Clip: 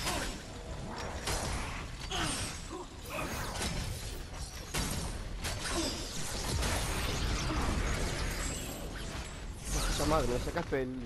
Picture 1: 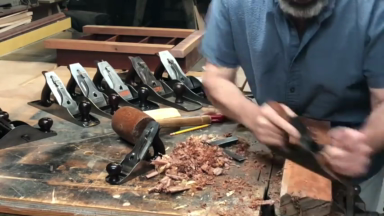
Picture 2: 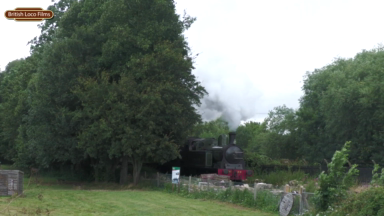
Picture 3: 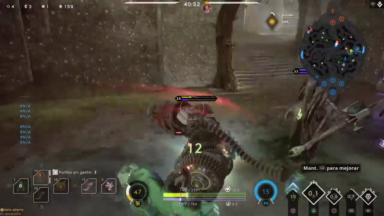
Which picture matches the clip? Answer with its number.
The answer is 3